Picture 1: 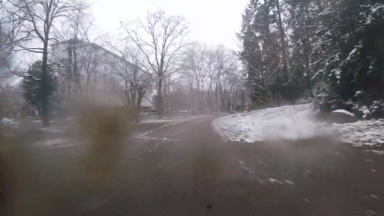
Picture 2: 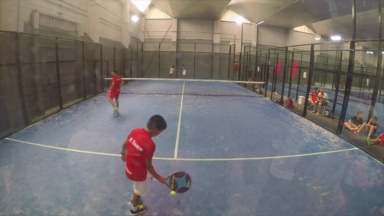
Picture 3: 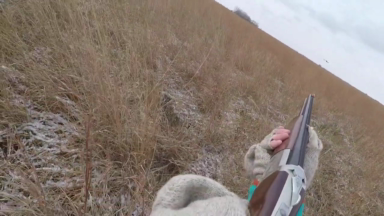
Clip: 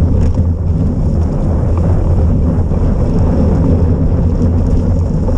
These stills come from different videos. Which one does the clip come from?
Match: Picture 1